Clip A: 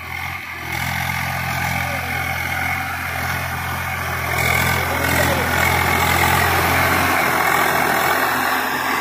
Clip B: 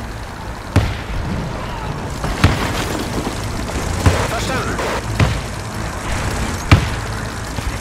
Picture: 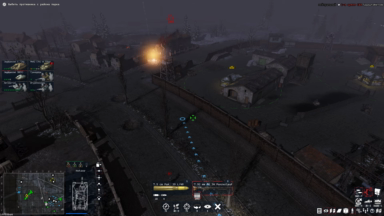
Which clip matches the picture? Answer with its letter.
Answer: B